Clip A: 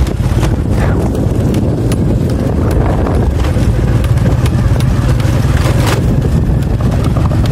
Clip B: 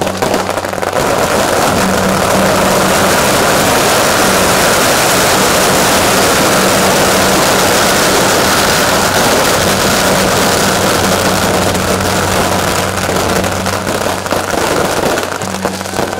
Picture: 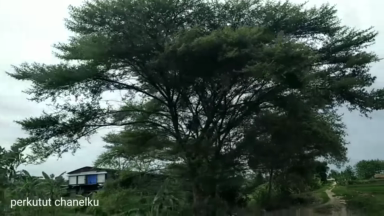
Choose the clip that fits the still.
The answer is A